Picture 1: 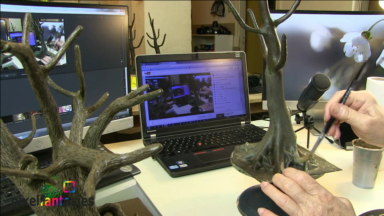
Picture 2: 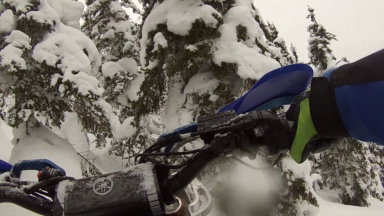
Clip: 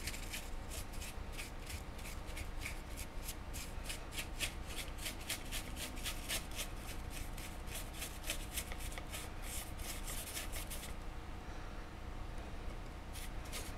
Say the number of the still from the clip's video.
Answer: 1